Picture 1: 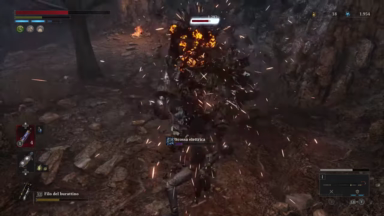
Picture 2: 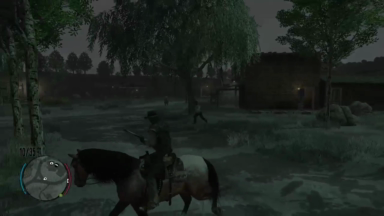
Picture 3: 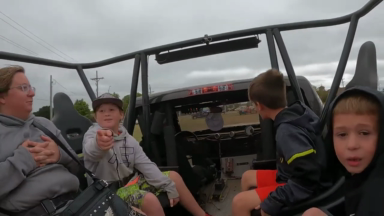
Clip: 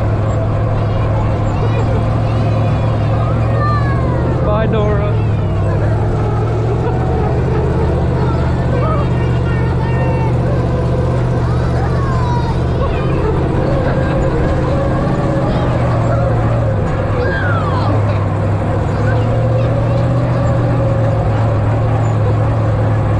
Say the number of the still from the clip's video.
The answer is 3